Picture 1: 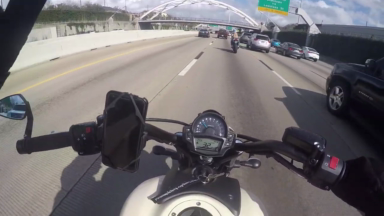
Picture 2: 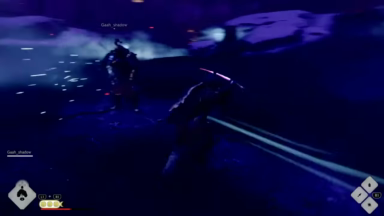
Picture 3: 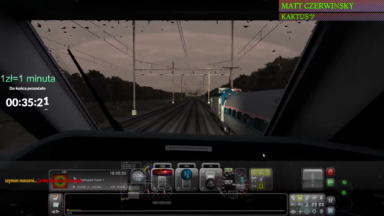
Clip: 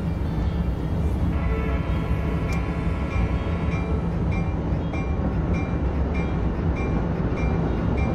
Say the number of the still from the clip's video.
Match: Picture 3